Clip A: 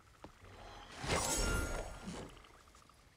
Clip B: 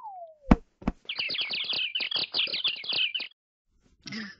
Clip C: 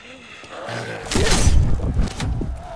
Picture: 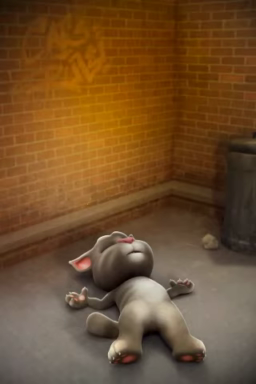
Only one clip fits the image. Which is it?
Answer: B